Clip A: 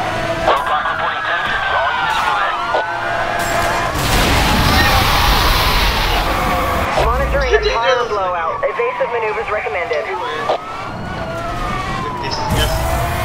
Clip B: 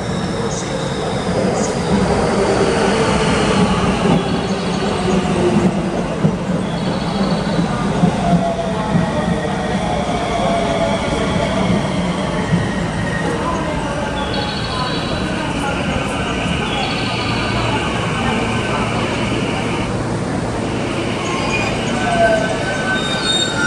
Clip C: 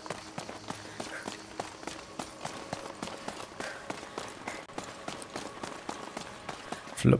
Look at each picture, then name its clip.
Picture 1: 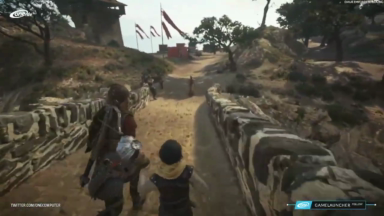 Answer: C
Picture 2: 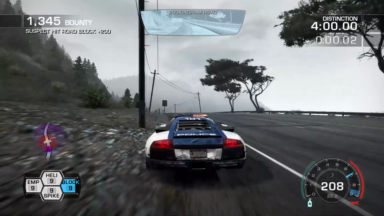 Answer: A